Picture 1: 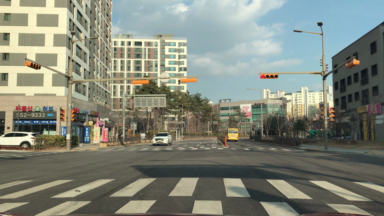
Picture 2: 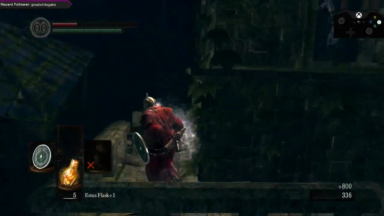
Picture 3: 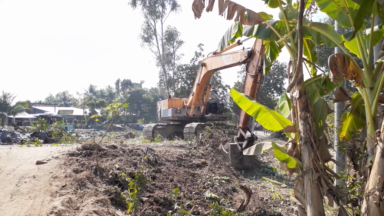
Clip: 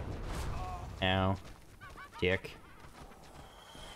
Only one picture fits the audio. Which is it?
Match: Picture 2